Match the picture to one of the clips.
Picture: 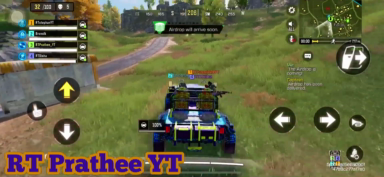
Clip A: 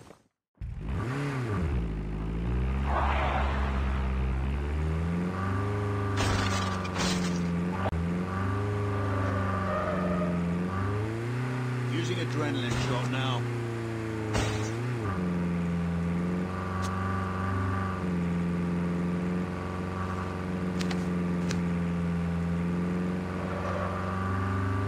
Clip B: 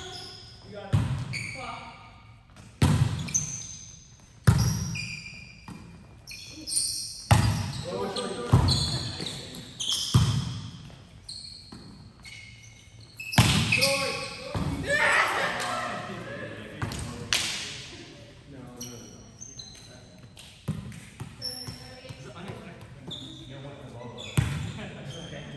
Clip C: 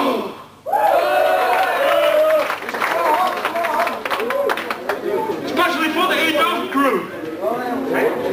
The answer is A